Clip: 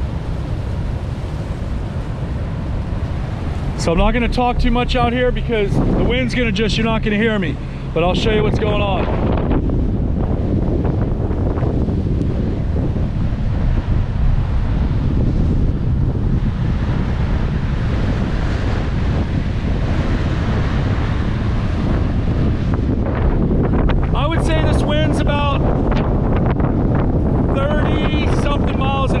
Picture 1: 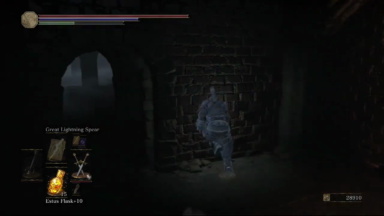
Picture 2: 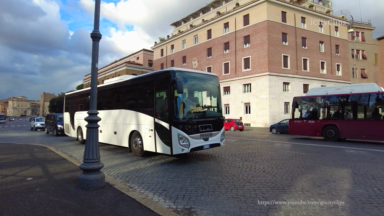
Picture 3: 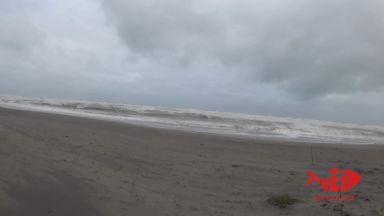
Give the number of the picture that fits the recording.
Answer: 3